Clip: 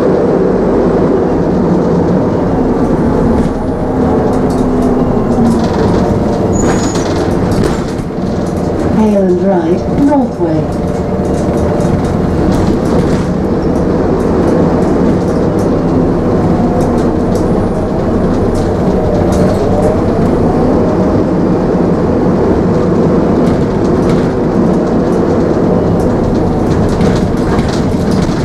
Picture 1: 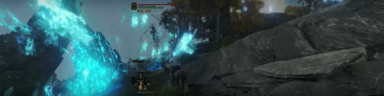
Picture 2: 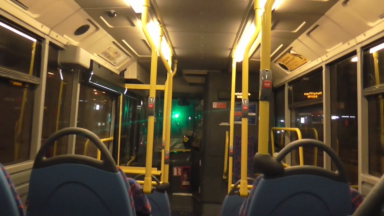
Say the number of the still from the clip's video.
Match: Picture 2